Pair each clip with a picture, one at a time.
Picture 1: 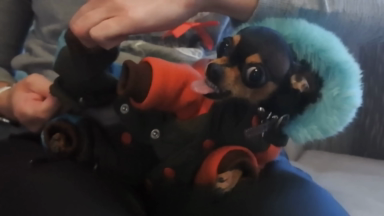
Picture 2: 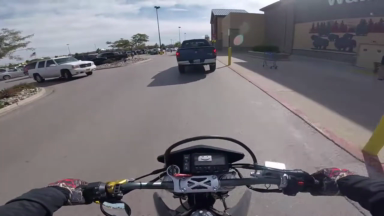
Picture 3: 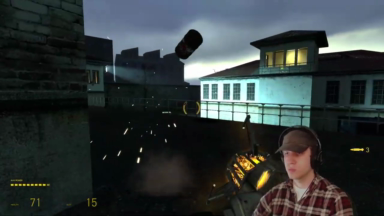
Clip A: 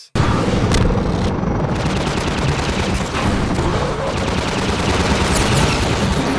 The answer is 3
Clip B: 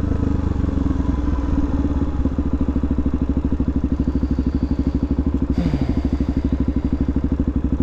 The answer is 2